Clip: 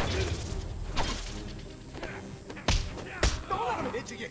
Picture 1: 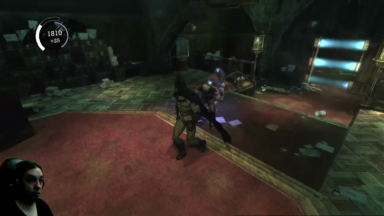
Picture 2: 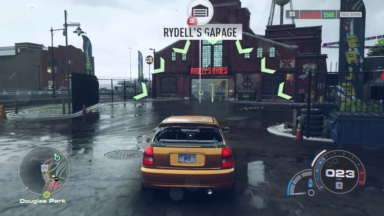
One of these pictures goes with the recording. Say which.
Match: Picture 1